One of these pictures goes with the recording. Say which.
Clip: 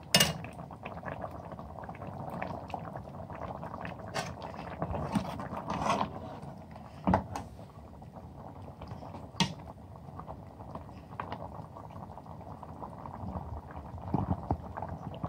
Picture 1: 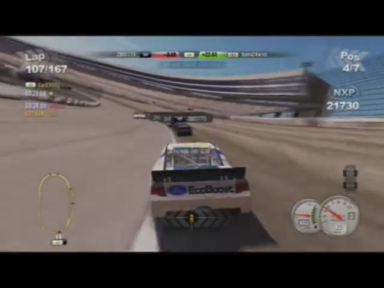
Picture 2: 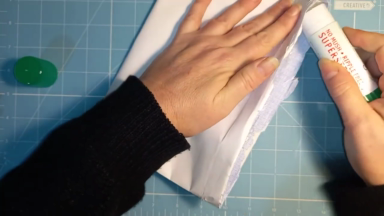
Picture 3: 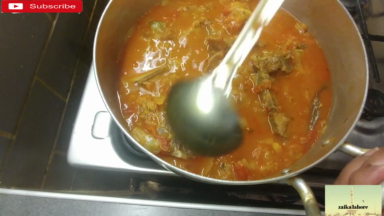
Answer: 3